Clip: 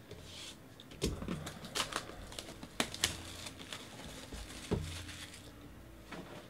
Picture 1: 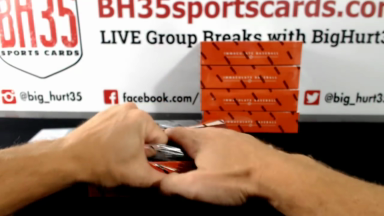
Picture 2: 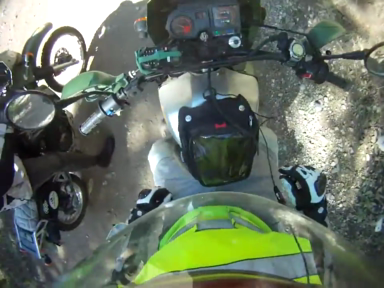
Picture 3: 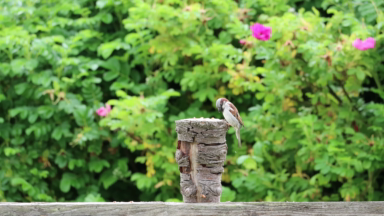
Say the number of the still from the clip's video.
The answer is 1